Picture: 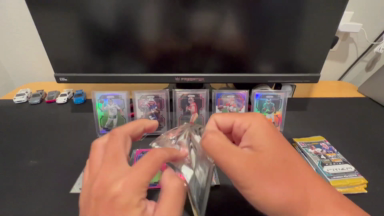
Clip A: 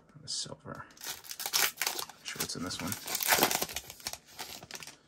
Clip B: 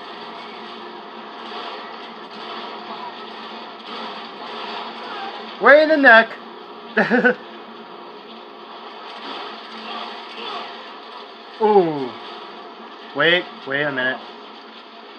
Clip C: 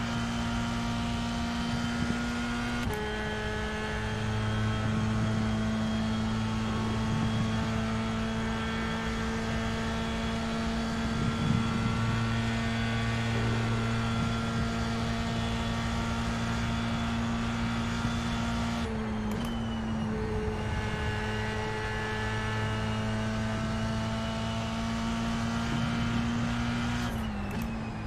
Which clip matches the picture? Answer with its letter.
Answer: A